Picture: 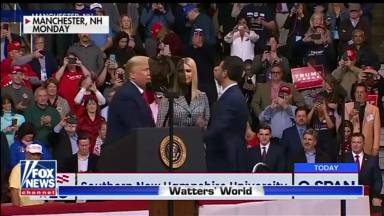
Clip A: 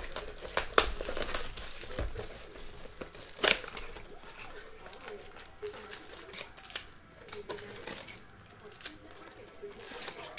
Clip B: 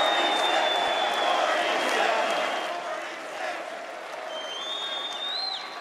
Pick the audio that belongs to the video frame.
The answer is B